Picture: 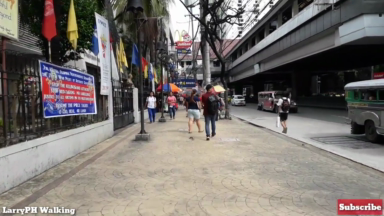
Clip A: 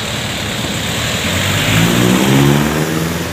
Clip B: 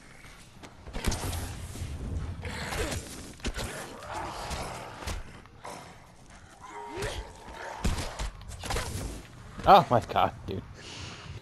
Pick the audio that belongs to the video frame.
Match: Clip A